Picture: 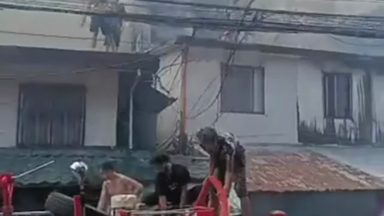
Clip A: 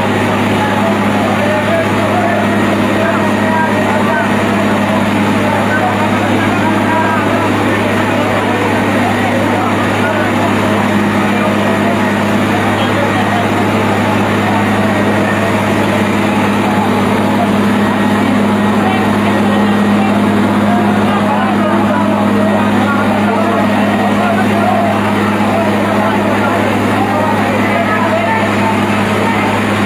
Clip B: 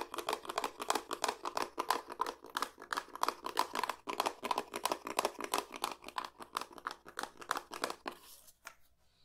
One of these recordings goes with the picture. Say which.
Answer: A